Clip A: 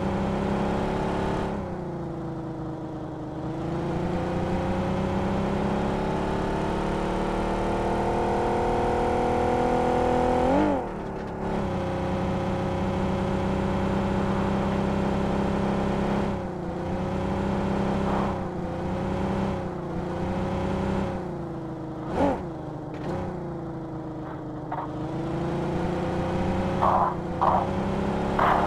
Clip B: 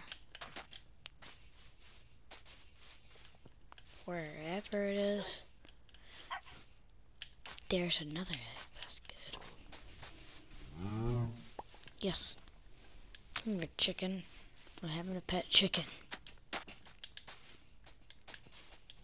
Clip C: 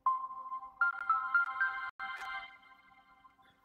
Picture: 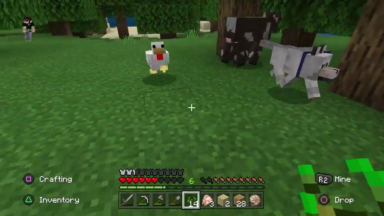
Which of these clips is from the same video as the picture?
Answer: B